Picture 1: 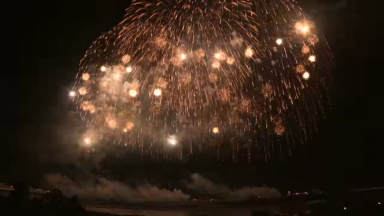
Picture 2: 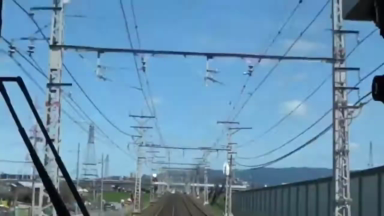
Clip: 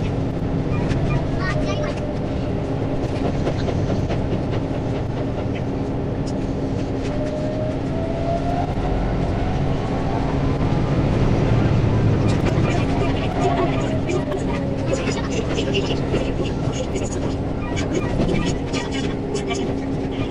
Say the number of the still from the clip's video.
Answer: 2